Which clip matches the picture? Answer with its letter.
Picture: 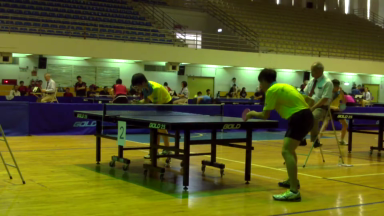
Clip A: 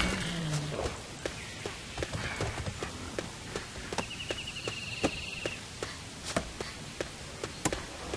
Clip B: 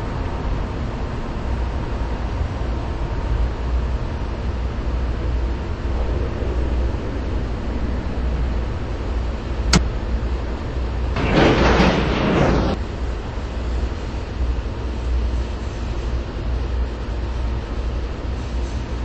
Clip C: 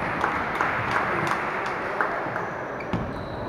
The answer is C